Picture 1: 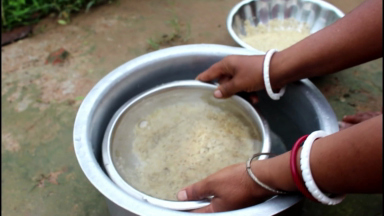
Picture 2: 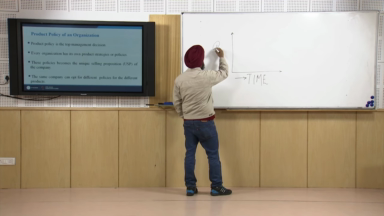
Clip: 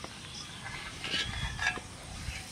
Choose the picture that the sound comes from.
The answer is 1